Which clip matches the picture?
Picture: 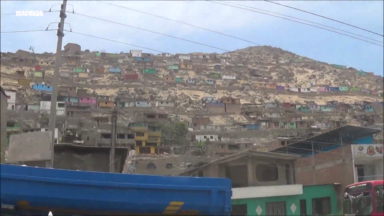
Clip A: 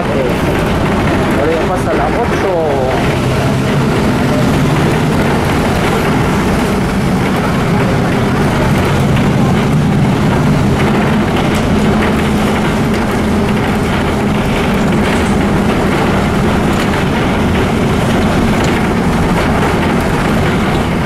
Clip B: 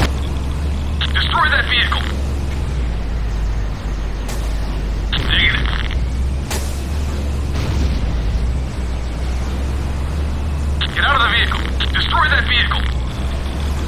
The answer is A